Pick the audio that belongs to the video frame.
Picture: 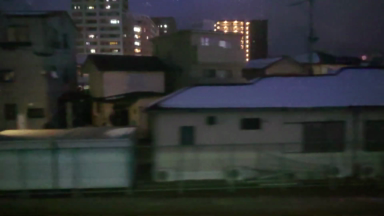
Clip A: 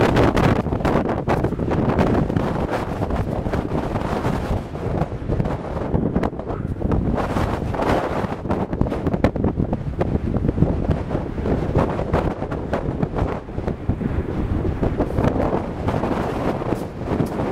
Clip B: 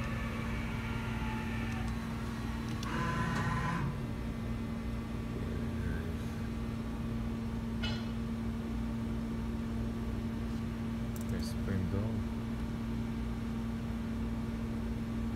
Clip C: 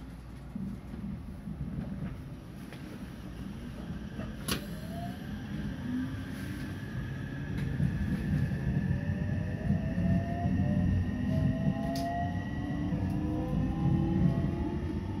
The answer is C